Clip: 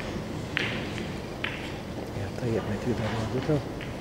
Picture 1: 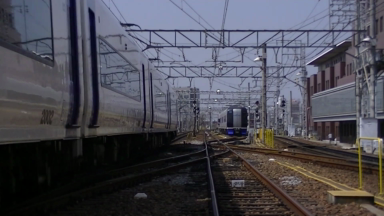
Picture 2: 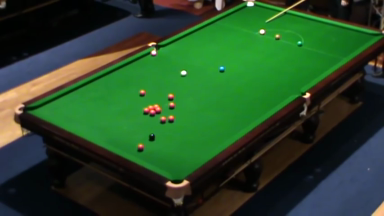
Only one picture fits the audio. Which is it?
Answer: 2